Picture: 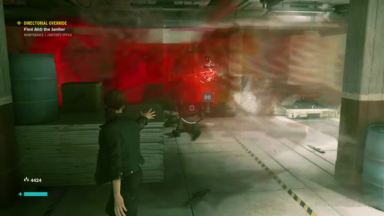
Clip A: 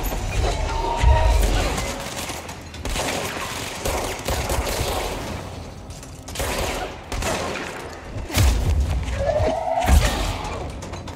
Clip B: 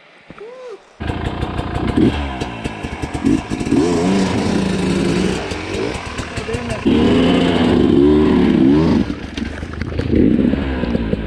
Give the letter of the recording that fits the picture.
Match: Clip A